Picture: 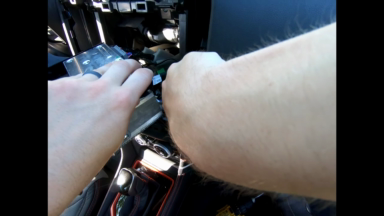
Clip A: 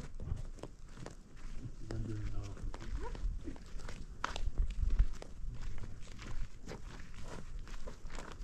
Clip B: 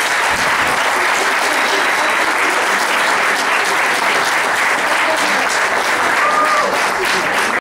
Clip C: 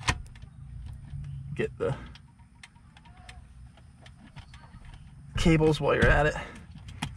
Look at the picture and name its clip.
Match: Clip C